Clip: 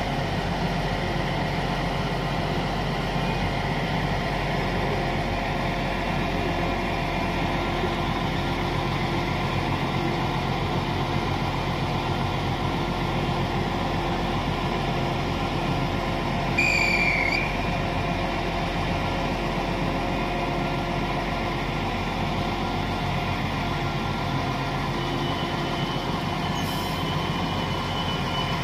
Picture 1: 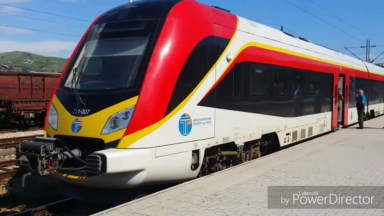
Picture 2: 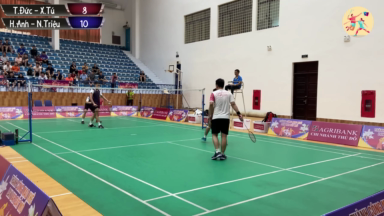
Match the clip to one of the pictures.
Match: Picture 1